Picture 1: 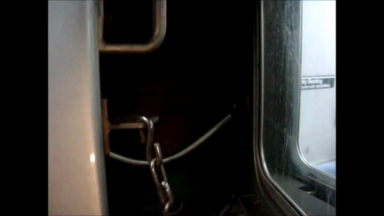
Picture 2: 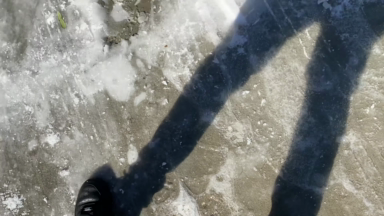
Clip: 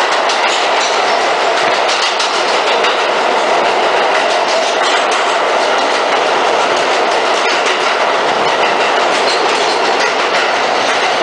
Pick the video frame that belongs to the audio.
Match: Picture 1